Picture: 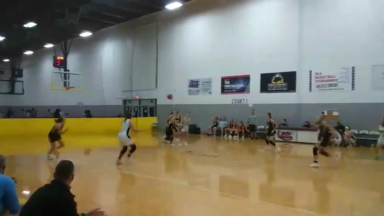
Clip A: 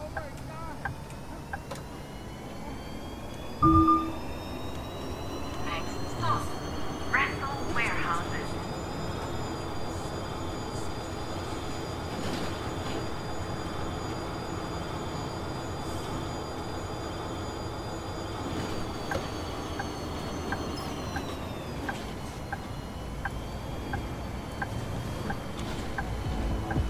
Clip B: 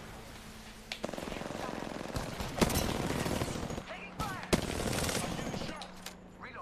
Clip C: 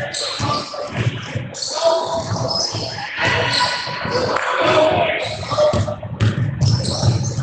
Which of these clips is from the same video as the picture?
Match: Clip C